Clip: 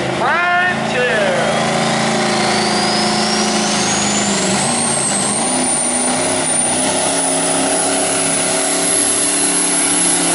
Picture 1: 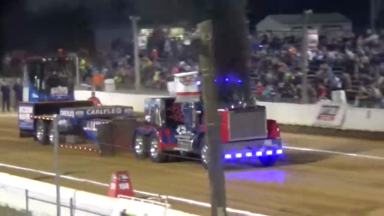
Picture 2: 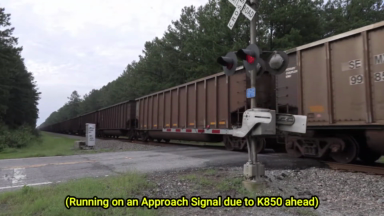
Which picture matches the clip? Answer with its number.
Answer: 1